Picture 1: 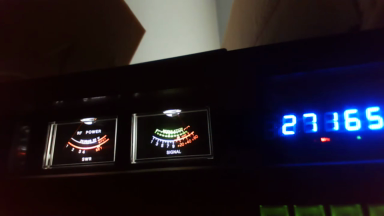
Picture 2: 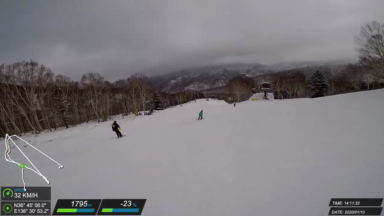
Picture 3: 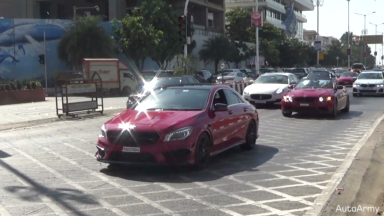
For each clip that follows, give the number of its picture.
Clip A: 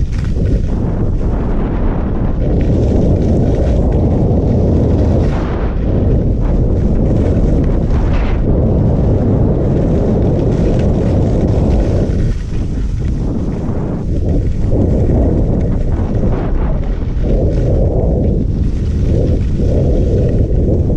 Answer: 2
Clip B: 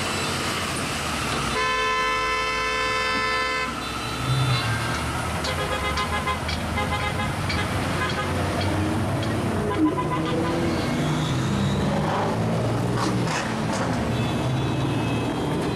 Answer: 3